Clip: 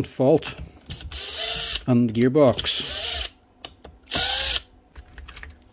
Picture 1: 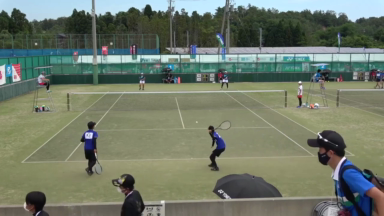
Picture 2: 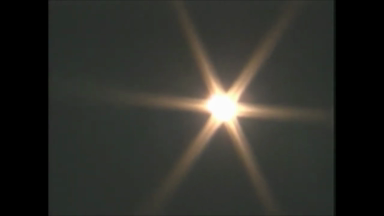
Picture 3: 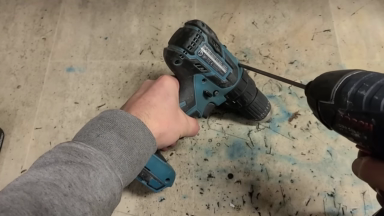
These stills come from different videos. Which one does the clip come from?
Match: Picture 3